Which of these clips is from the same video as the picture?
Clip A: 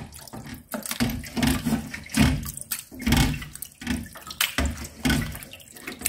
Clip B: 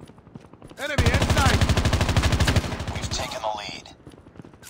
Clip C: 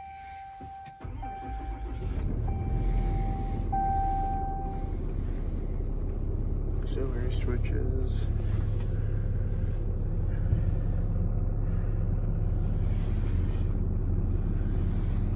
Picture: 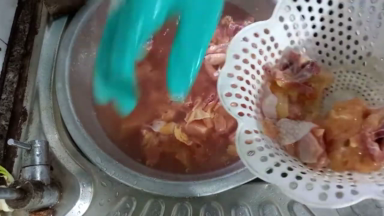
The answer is A